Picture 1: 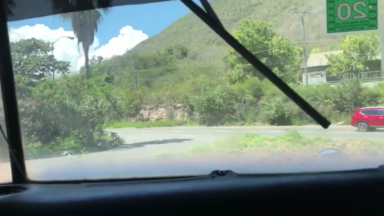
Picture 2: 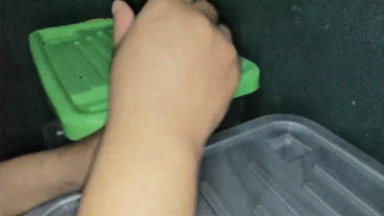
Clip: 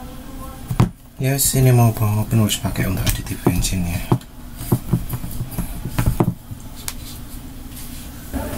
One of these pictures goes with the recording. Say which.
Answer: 2